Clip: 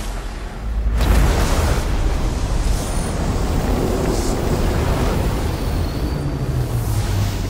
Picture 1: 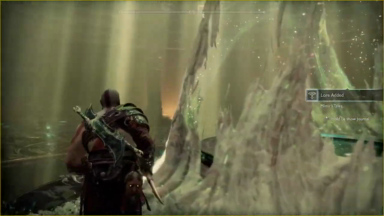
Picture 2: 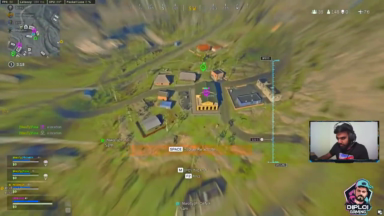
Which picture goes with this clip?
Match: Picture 1